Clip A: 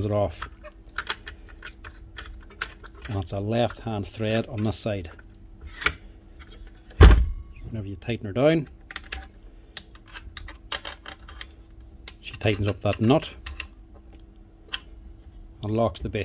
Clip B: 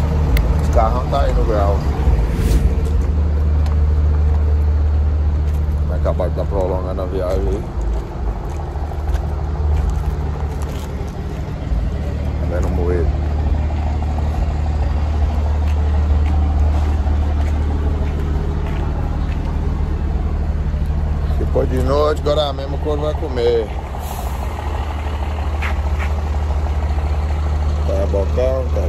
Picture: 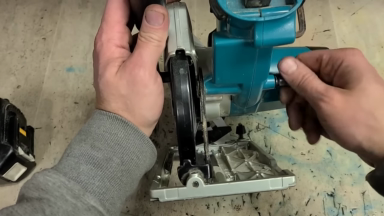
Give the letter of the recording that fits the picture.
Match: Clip A